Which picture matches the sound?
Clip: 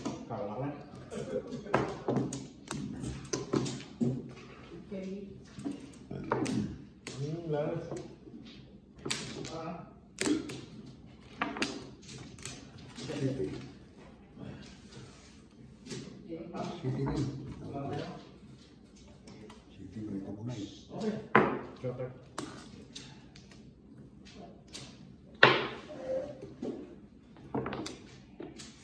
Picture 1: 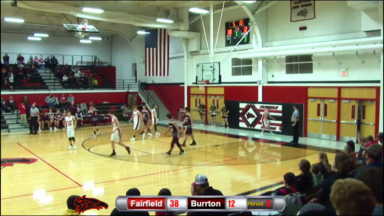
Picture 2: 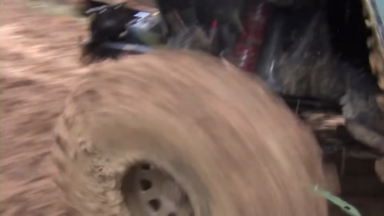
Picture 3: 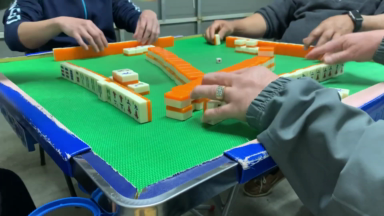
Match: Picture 3